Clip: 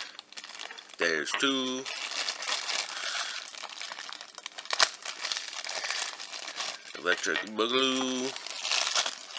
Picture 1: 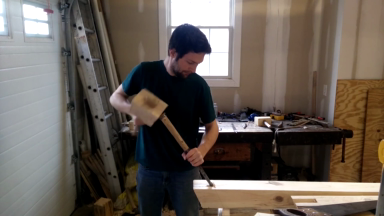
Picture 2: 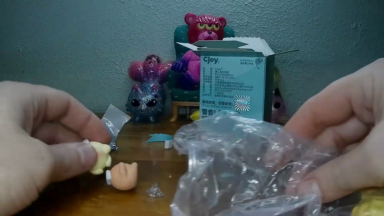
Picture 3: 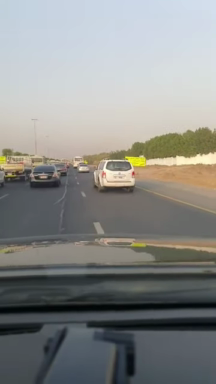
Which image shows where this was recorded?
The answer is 2